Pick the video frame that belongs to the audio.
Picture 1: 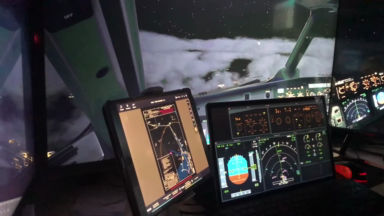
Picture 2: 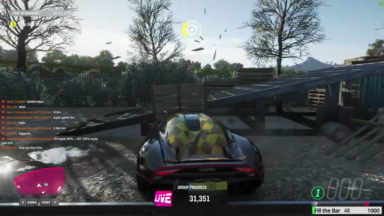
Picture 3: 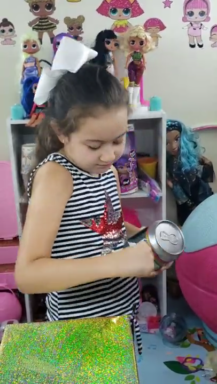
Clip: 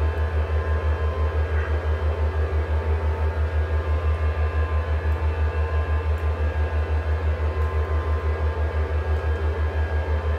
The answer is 1